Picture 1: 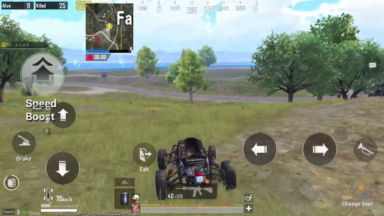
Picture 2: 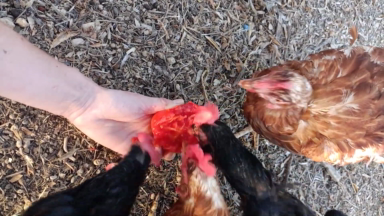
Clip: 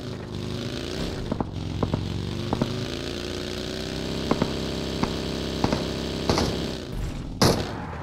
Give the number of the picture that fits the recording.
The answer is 1